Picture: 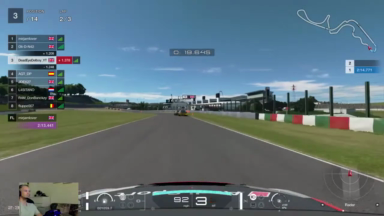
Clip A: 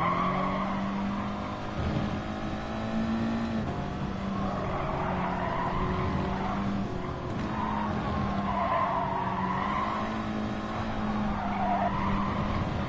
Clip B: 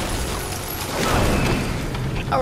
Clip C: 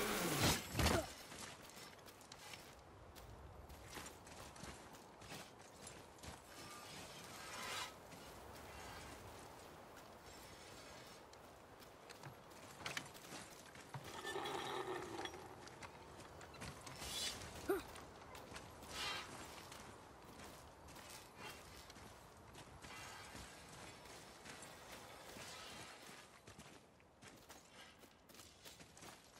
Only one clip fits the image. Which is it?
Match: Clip A